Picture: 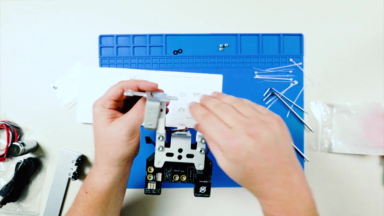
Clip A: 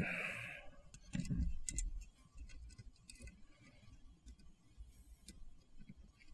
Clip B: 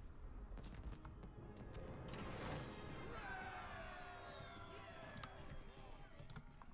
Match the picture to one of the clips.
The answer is A